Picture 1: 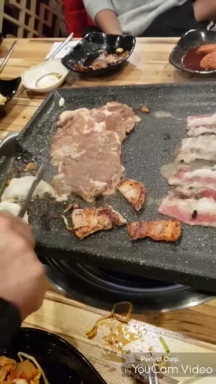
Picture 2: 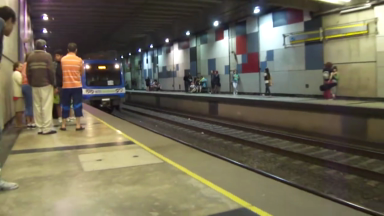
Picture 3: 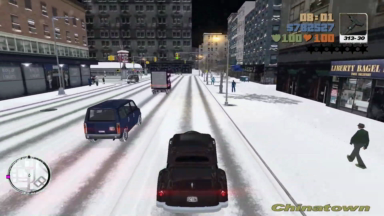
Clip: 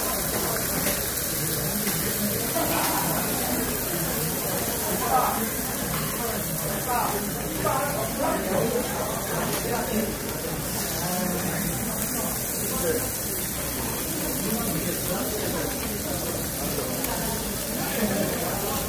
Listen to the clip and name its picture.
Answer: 1